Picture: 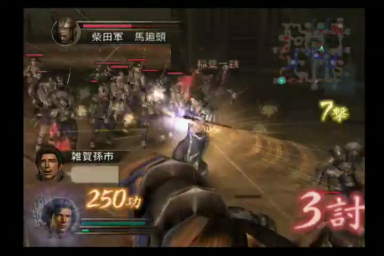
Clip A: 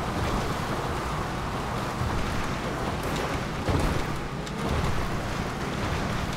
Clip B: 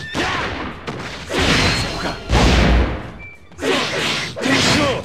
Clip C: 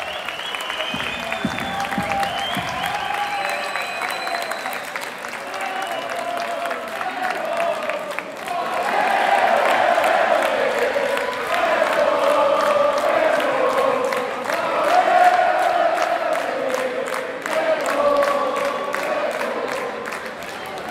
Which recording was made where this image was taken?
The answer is B